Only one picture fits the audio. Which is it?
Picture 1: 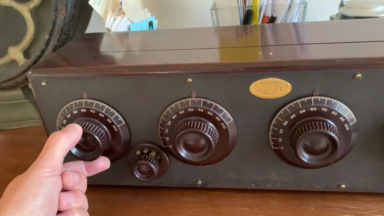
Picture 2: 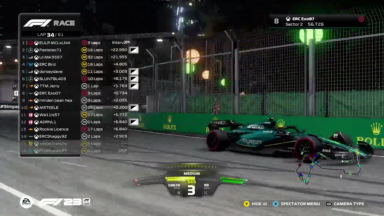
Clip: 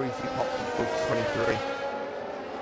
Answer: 2